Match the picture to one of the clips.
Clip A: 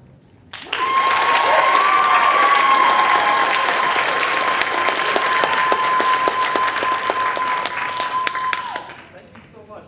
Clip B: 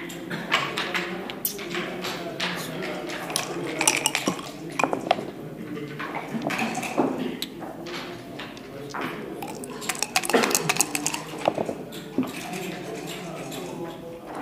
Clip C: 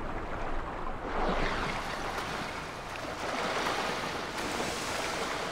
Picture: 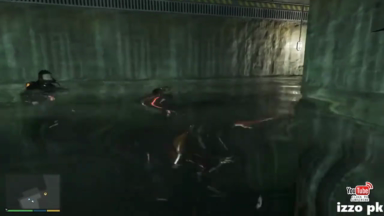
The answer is C